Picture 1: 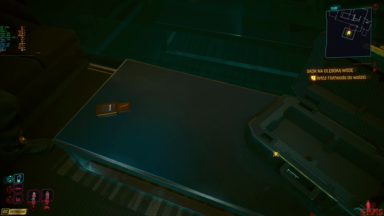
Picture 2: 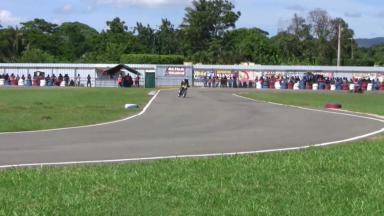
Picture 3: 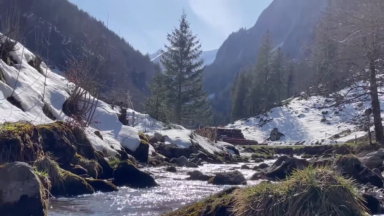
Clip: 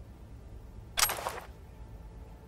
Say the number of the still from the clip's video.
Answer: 1